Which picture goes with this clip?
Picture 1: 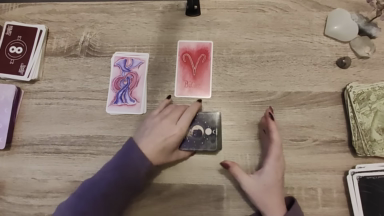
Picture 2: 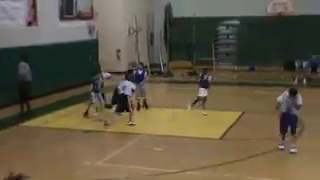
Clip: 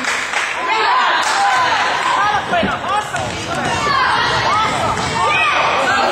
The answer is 2